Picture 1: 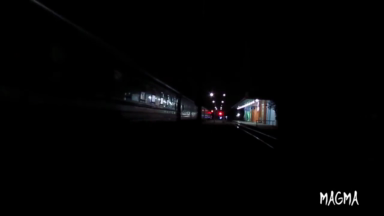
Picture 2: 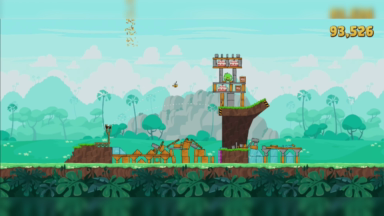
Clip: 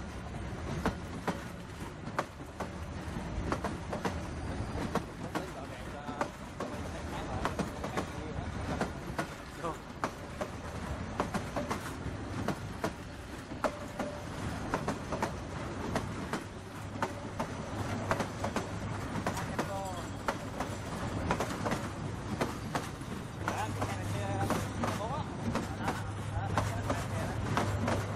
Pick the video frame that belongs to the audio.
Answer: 1